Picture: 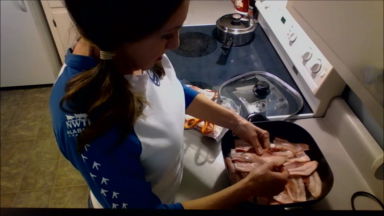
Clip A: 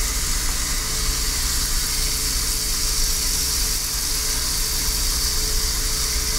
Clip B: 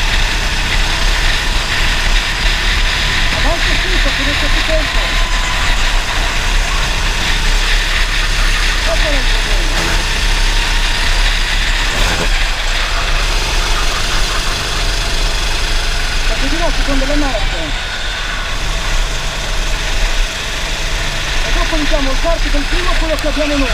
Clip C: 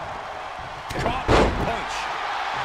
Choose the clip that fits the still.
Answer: A